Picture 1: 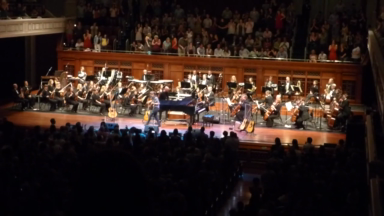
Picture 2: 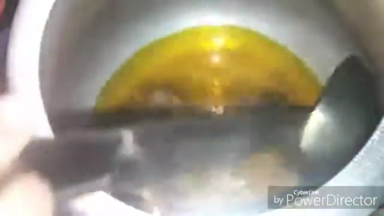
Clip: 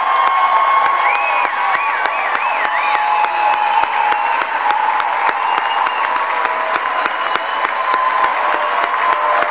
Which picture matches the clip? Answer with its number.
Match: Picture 1